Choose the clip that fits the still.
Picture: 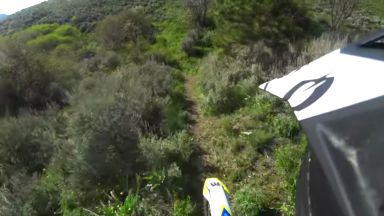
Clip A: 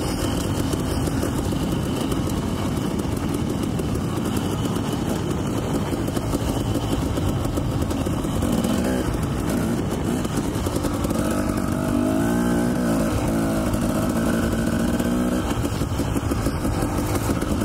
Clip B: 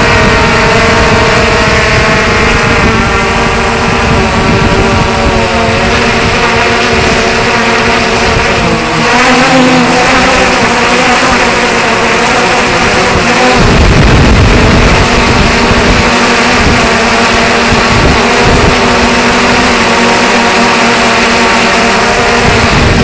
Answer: A